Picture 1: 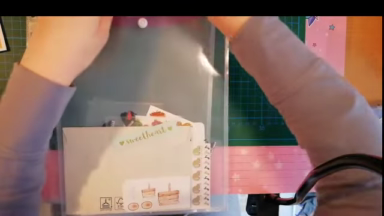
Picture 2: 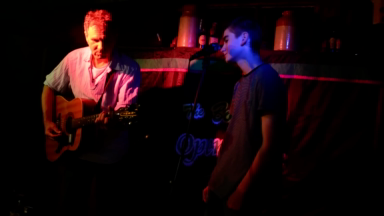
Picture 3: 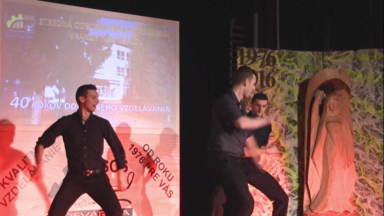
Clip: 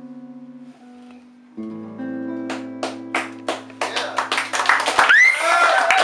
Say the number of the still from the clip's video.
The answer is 2